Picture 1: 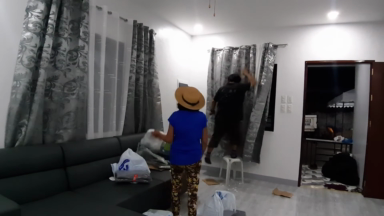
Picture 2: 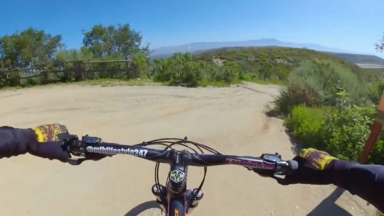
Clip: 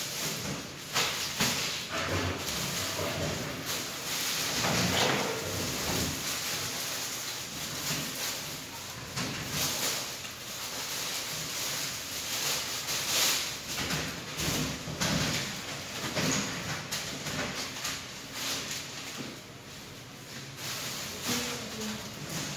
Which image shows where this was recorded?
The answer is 1